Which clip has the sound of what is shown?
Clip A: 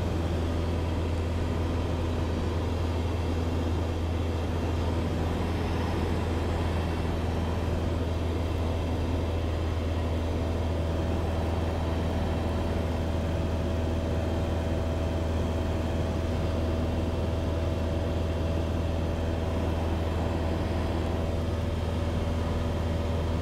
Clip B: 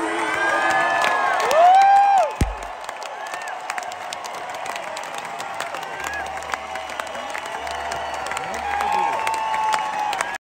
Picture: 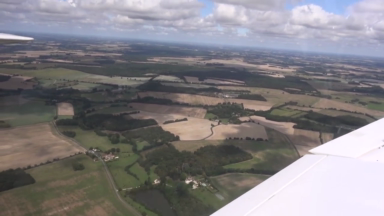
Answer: A